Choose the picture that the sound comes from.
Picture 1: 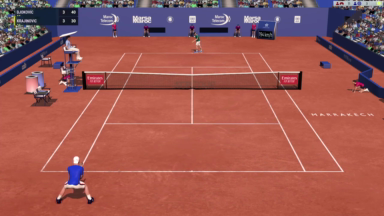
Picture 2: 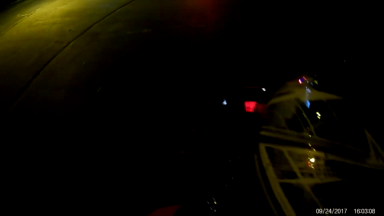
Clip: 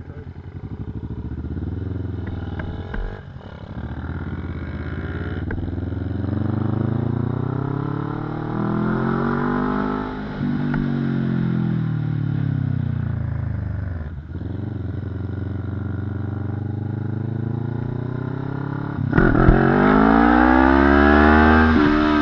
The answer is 2